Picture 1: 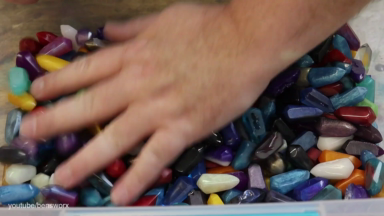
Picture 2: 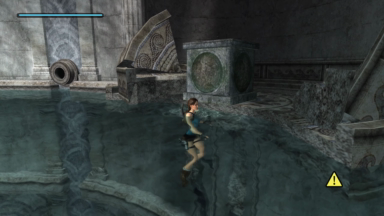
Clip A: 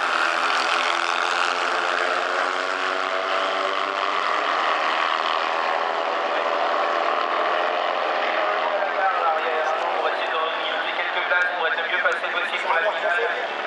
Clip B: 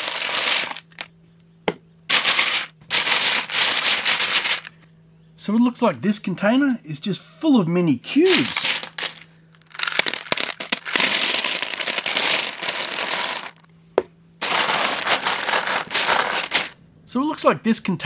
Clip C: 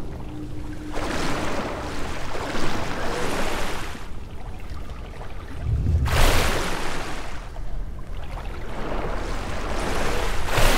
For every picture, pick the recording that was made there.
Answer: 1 B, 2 C